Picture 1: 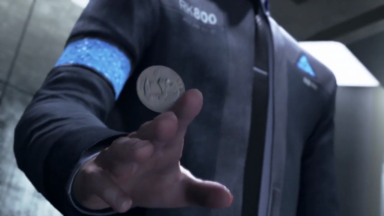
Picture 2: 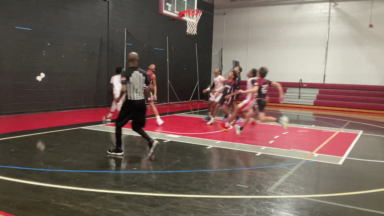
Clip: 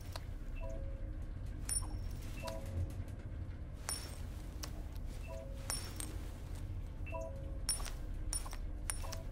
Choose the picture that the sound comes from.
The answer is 1